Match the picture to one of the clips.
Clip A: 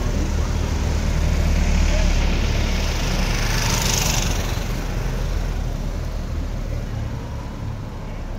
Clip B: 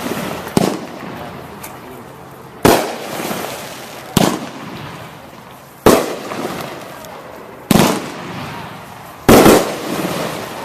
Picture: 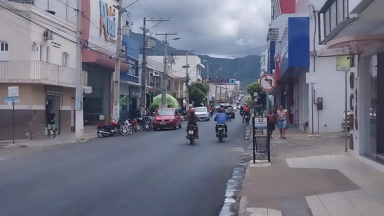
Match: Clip A